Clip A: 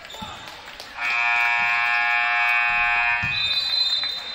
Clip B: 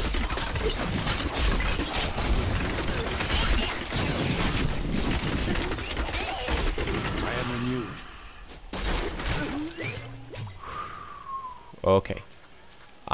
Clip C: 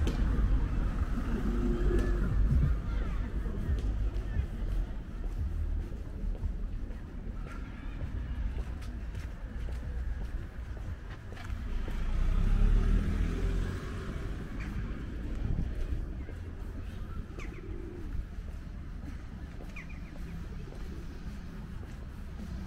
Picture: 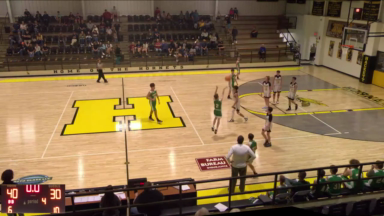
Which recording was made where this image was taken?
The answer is A